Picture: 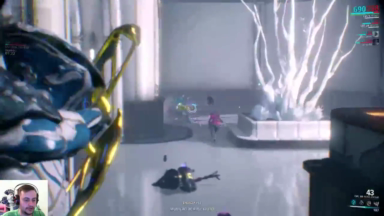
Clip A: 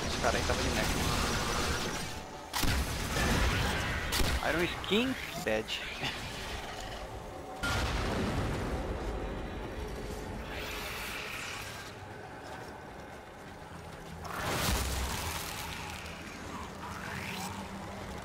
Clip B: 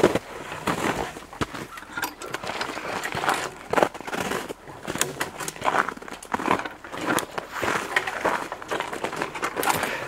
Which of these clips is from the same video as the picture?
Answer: A